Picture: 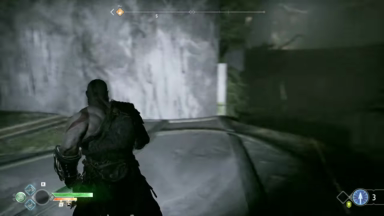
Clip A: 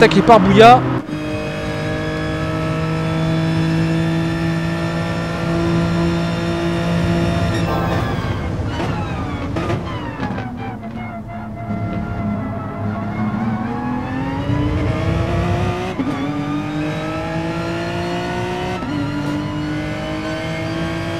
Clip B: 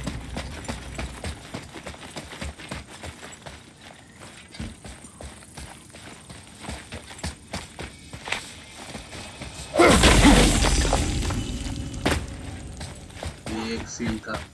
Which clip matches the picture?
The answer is B